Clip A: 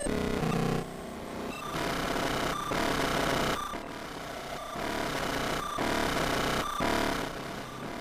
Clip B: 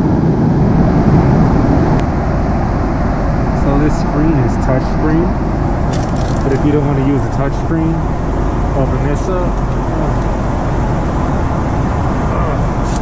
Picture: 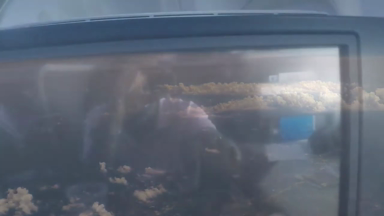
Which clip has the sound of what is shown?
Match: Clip B